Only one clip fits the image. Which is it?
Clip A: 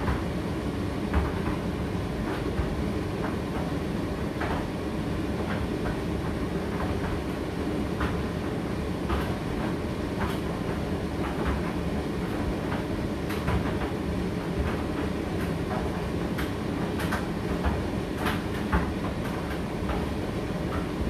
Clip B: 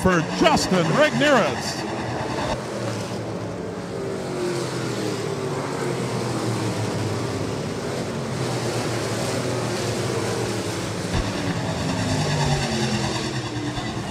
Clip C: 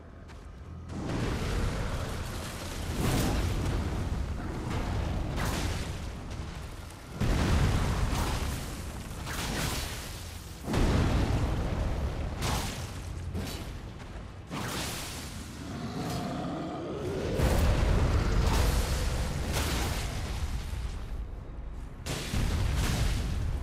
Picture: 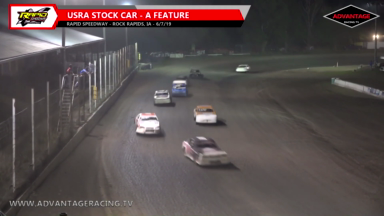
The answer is B